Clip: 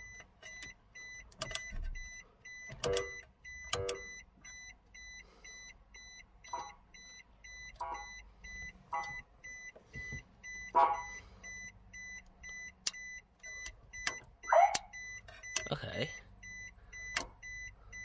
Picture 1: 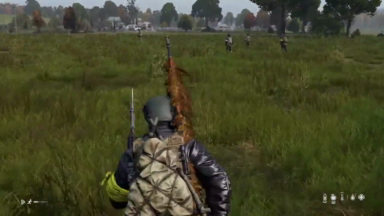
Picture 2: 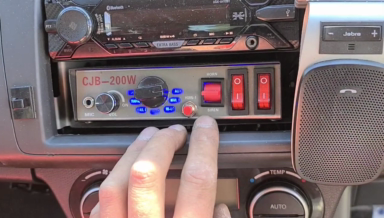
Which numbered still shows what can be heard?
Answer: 2